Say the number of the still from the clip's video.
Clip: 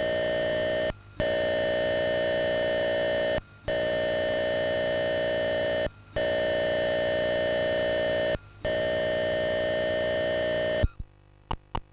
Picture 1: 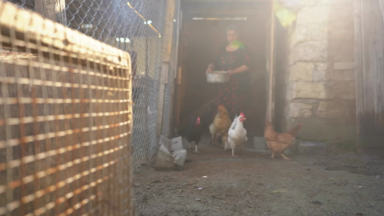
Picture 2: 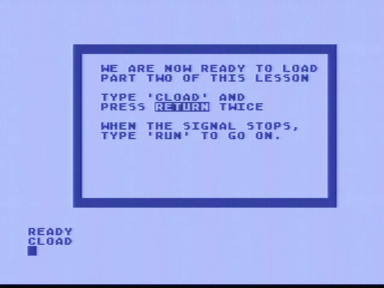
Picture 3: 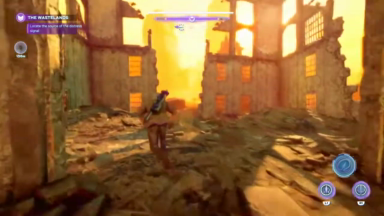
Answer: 2